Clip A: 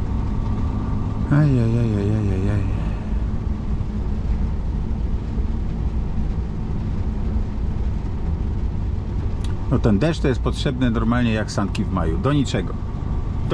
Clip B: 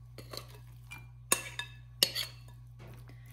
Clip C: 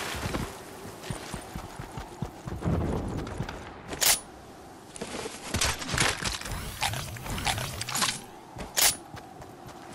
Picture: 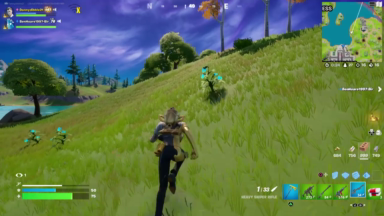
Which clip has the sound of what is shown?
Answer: C